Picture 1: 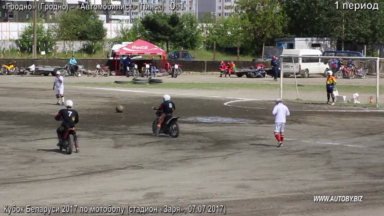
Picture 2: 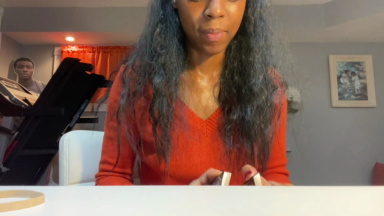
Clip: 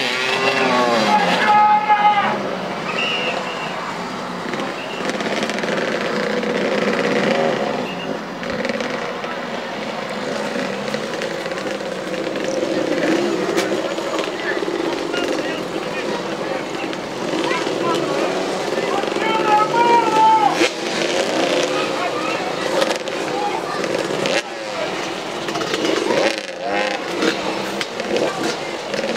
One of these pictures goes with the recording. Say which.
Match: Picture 1